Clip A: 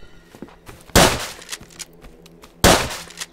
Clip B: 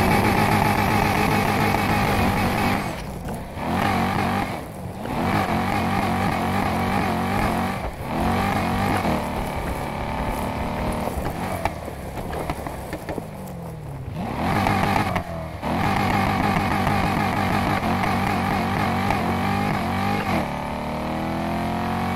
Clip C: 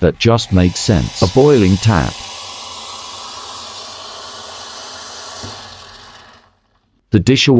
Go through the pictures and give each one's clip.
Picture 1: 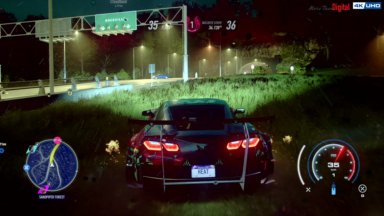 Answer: B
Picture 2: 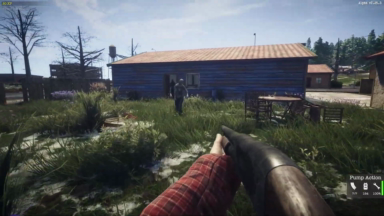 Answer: A